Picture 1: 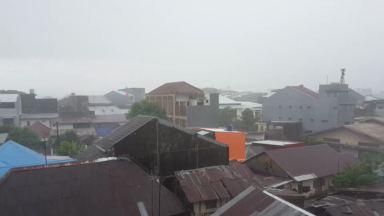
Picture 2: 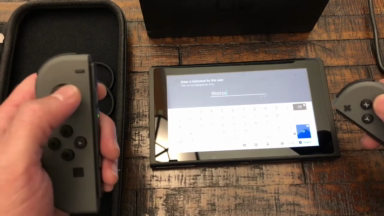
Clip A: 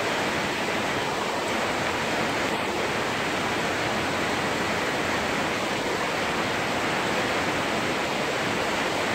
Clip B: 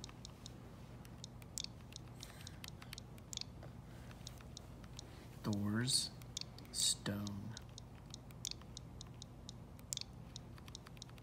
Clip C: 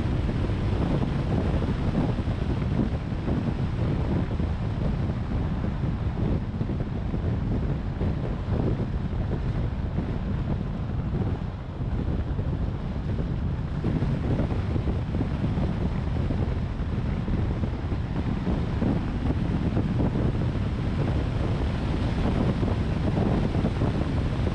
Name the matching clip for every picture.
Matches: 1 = A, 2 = B